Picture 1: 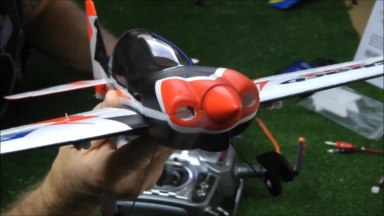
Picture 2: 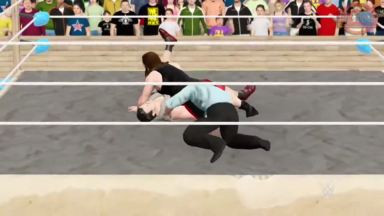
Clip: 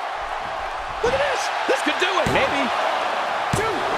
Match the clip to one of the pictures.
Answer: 2